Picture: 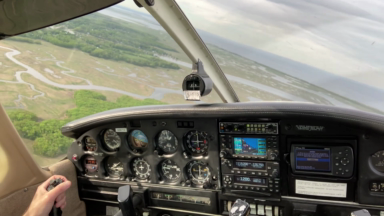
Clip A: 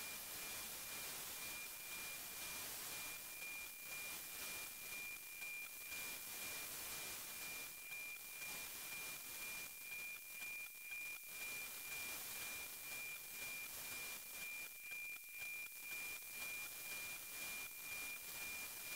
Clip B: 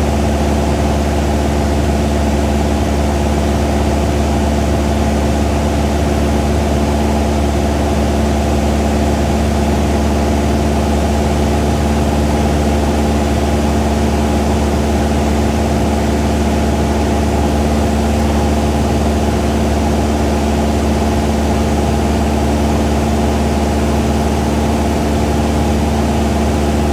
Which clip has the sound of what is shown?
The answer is B